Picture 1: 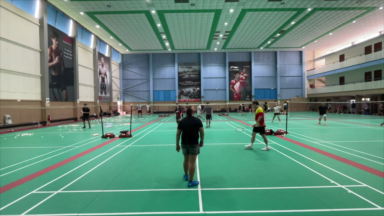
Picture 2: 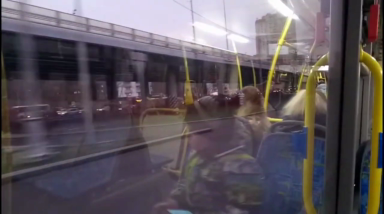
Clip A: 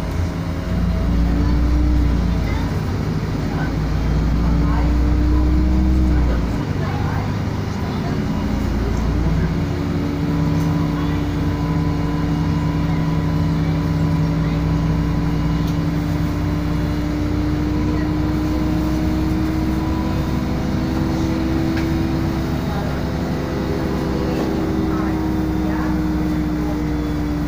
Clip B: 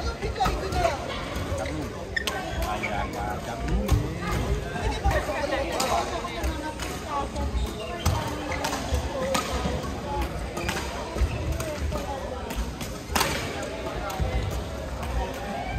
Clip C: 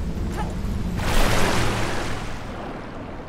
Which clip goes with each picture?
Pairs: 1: B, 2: A